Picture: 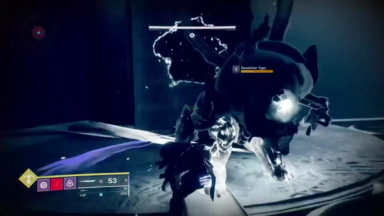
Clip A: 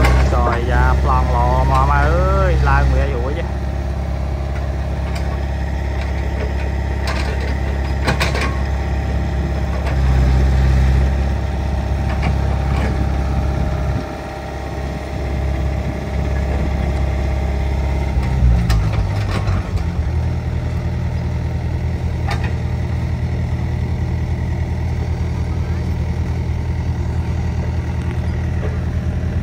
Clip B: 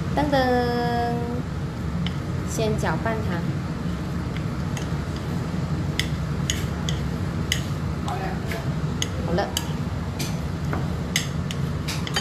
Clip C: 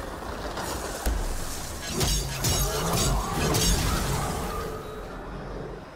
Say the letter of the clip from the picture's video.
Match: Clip C